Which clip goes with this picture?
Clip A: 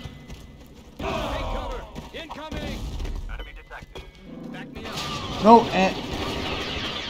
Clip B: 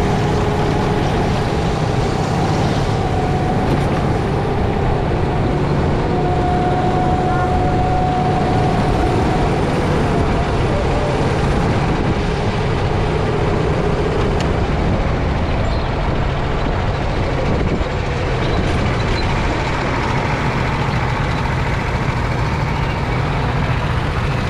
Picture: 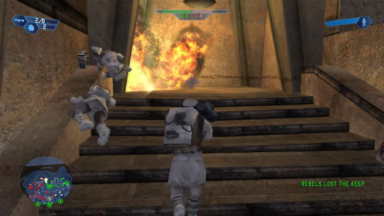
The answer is A